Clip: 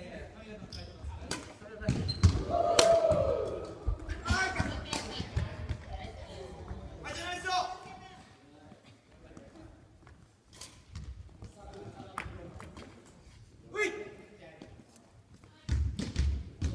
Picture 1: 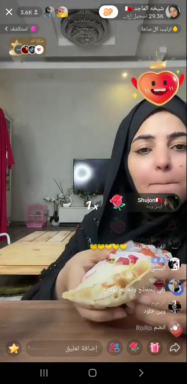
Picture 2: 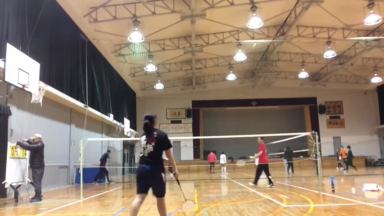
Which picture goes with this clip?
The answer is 2